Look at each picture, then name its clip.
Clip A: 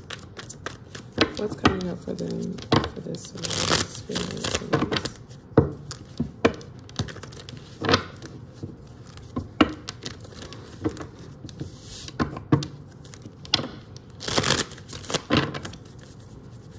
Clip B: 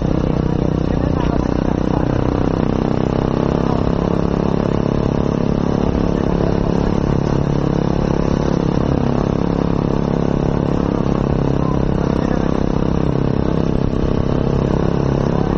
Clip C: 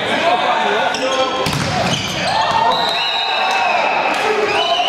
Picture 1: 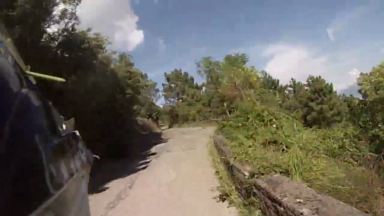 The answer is B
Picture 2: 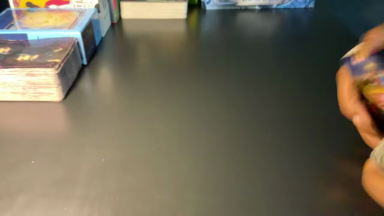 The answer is A